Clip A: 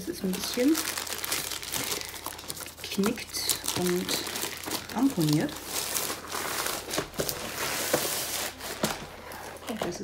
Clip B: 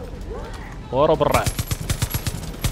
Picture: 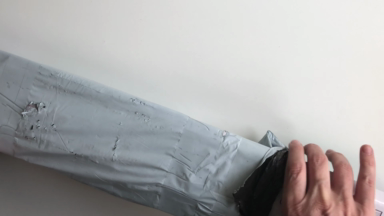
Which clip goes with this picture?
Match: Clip A